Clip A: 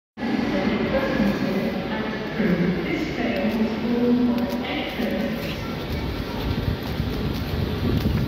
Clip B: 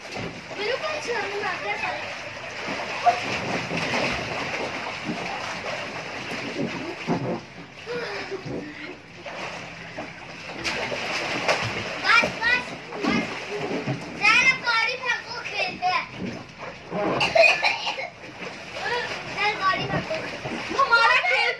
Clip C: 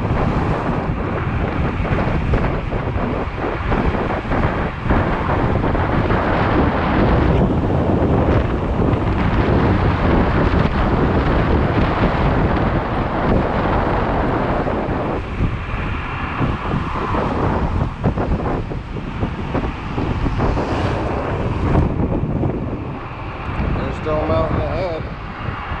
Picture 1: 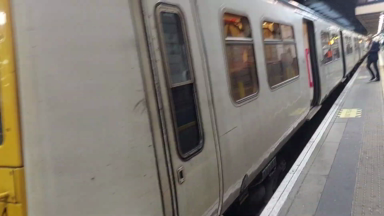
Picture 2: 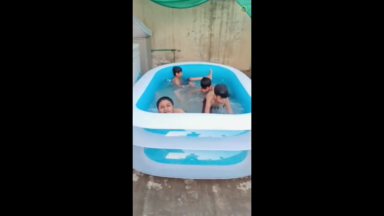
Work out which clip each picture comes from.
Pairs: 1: A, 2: B